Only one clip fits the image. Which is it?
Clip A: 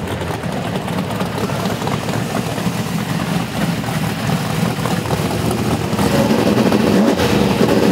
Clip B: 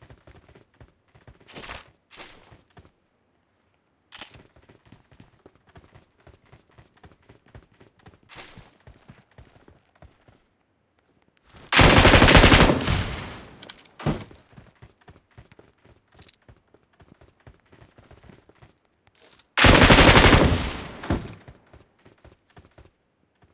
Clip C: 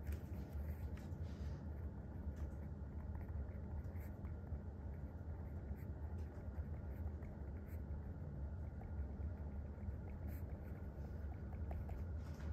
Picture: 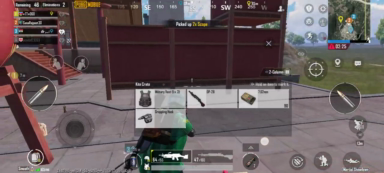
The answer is B